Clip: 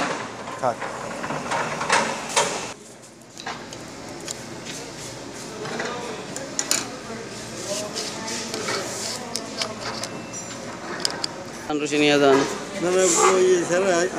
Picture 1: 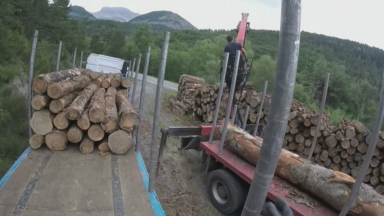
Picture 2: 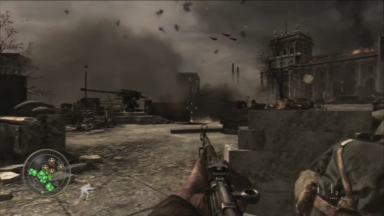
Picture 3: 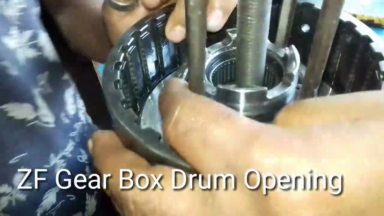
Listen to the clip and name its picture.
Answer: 3